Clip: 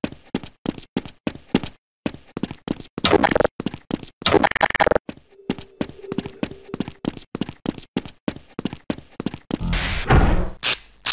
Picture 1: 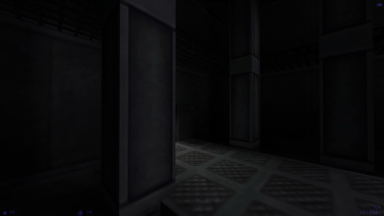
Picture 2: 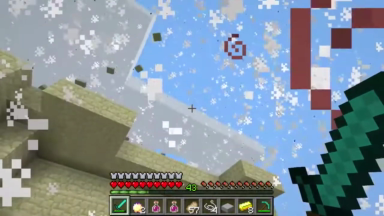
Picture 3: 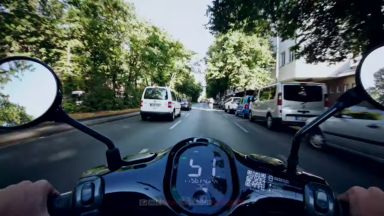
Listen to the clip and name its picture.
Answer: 1